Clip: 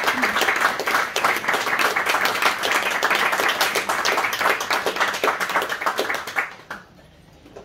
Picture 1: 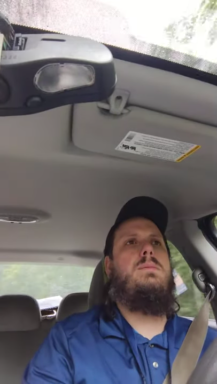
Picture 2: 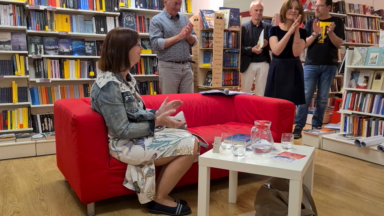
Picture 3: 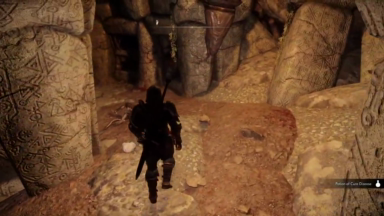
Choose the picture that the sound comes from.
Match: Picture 2